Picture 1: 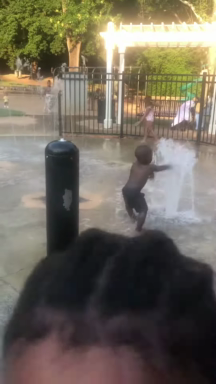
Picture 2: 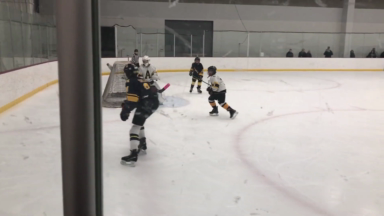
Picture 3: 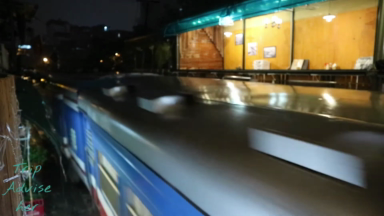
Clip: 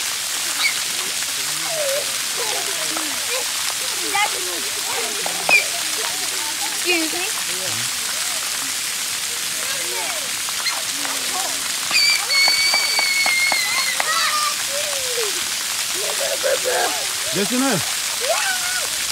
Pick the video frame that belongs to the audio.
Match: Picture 1